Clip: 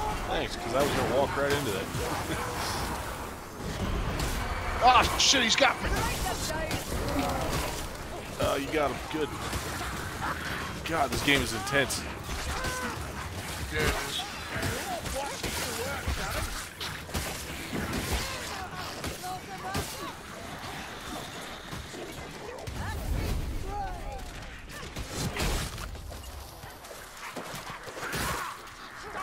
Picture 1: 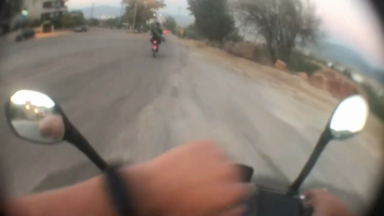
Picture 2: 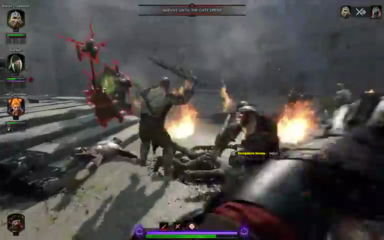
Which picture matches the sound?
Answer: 2